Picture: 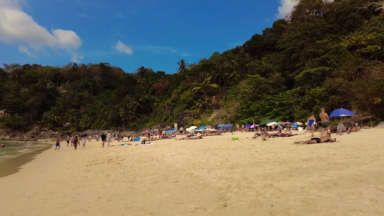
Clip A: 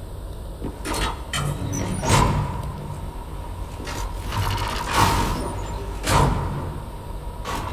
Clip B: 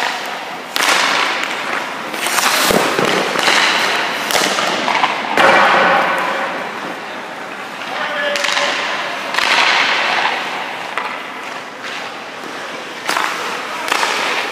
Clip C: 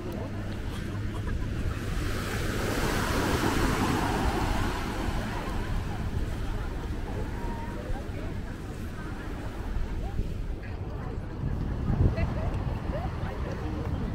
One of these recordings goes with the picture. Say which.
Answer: C